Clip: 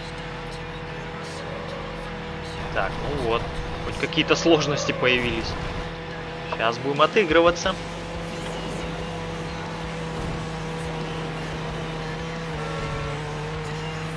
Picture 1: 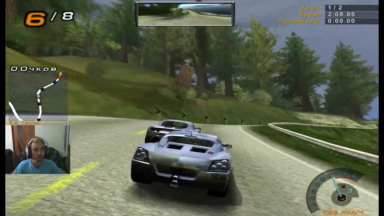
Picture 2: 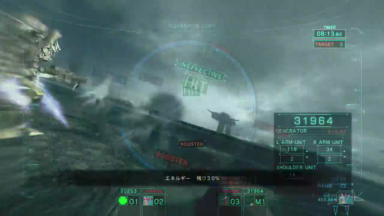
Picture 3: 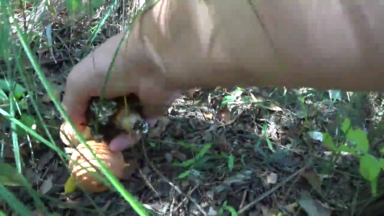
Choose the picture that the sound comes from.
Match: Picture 1